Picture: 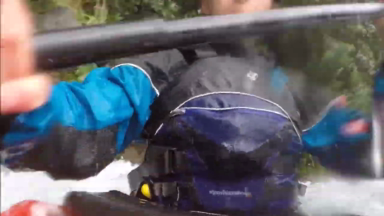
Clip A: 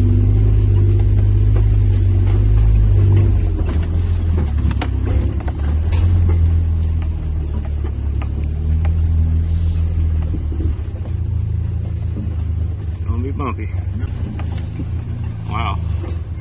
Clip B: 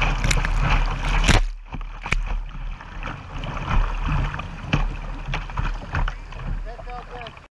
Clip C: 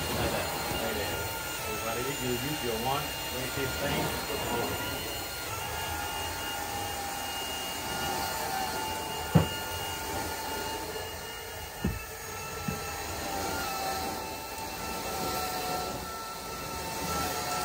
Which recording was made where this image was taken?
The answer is B